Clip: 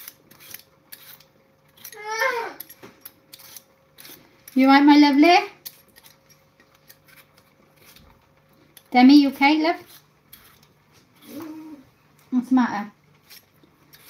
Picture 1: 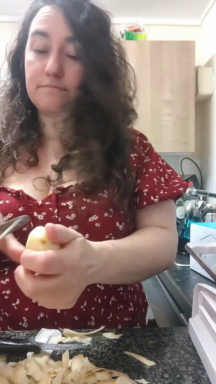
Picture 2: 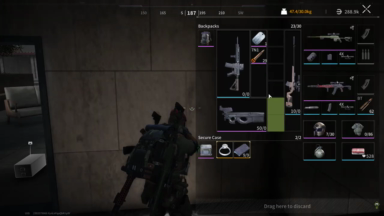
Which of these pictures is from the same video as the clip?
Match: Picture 1